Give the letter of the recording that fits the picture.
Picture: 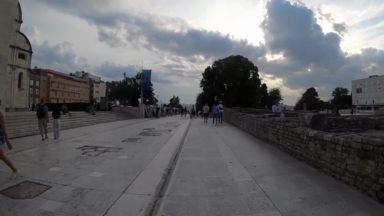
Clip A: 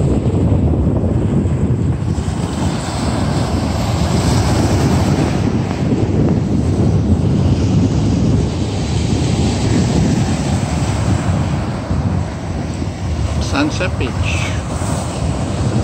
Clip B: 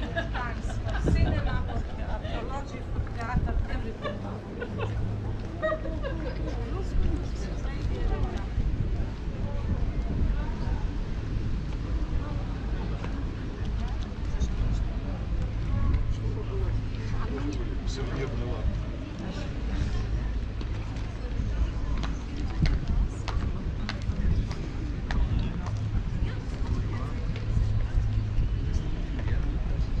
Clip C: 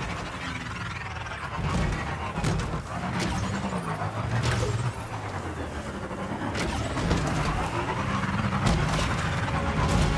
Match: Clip B